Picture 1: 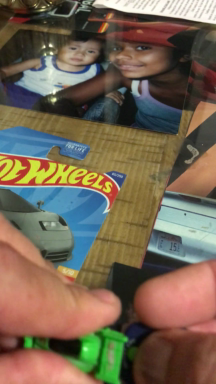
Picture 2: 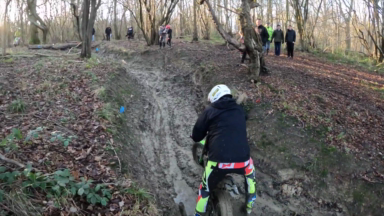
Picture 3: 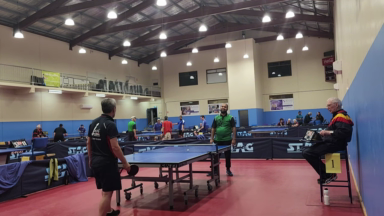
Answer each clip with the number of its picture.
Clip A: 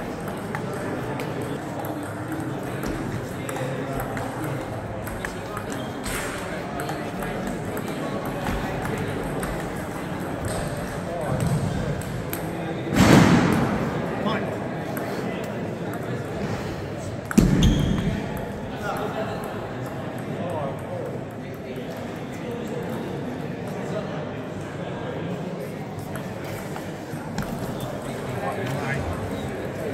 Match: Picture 3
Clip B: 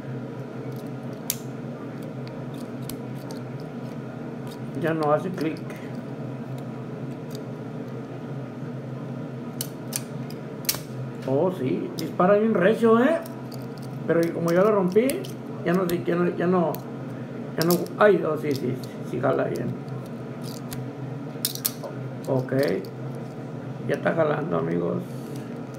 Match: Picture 1